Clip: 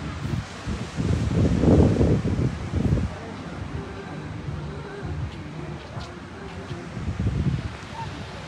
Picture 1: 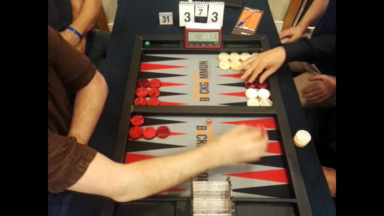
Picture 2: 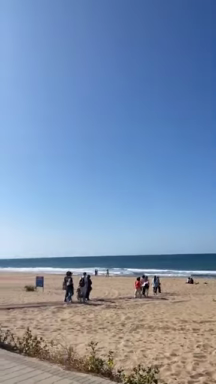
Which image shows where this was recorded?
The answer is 2